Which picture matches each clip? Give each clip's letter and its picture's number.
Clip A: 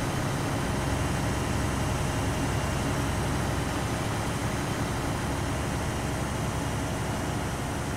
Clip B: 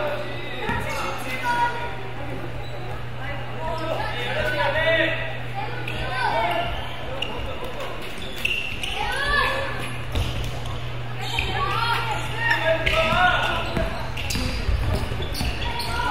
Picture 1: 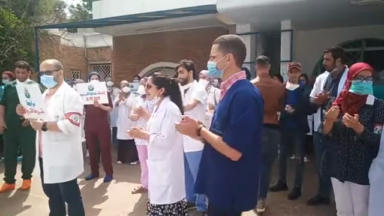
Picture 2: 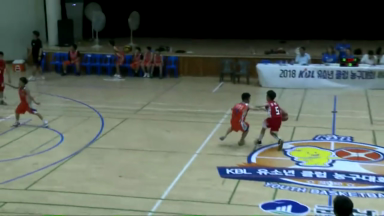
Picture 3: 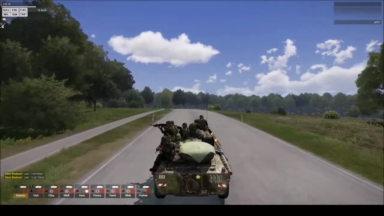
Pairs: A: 3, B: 2